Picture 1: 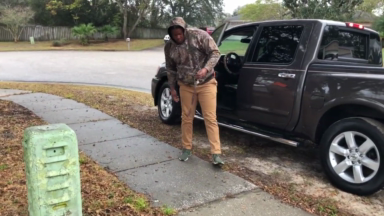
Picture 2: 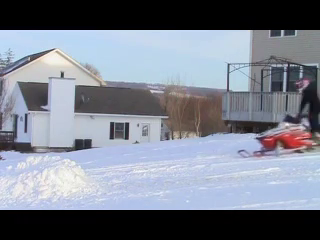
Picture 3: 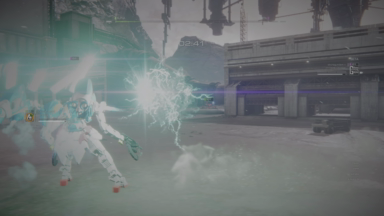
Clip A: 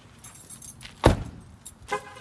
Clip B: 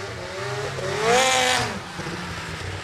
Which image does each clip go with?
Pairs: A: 1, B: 2